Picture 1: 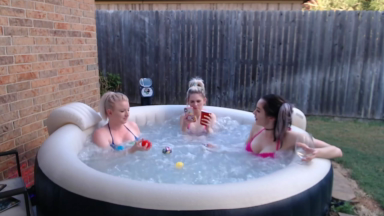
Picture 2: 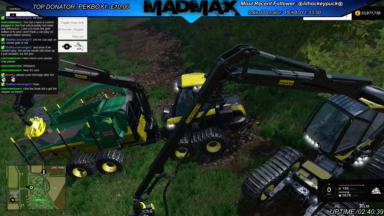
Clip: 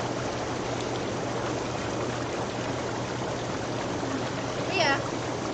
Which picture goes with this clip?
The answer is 1